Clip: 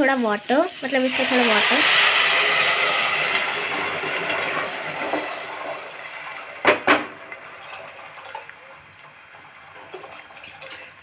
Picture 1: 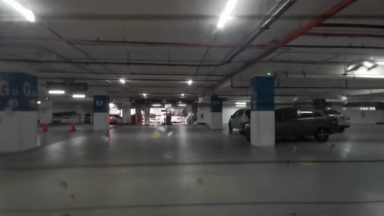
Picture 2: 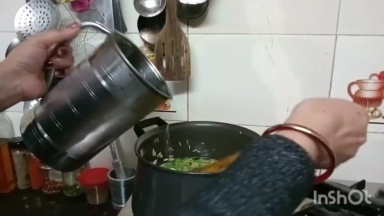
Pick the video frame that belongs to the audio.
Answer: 2